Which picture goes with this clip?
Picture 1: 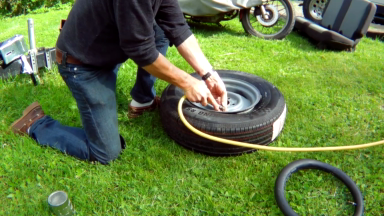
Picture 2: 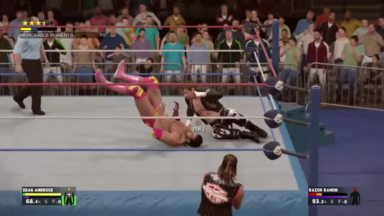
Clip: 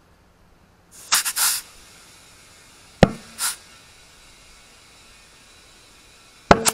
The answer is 1